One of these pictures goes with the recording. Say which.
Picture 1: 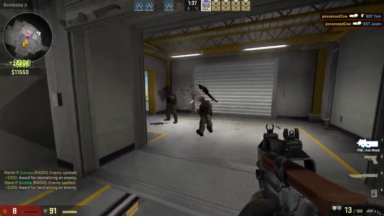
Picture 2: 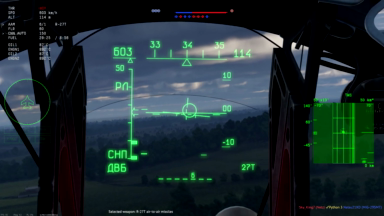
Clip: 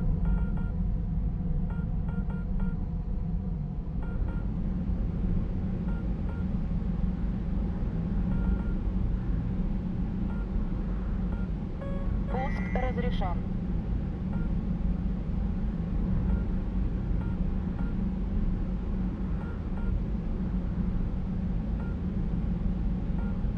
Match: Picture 2